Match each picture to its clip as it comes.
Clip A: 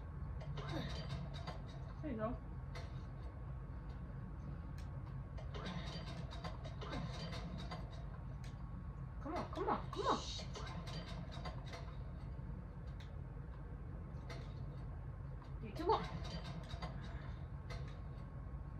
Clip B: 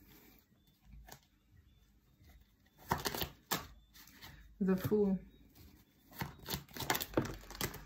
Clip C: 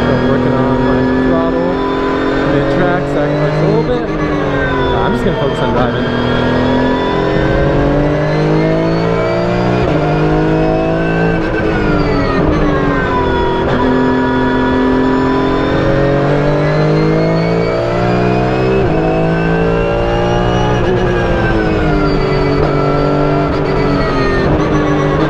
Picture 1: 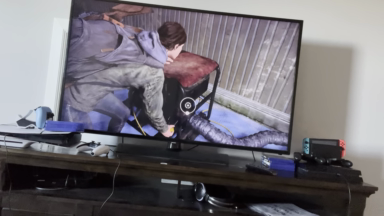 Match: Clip A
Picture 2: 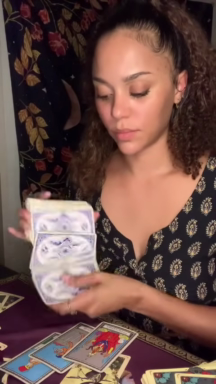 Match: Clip B